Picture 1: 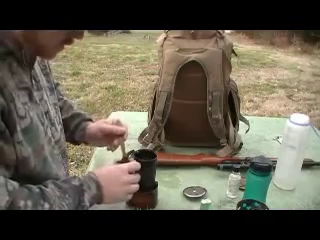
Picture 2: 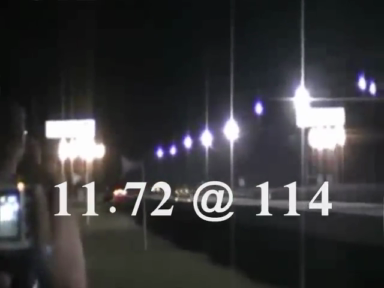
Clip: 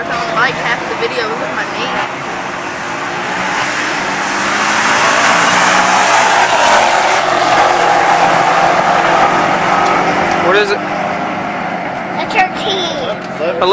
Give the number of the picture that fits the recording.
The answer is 2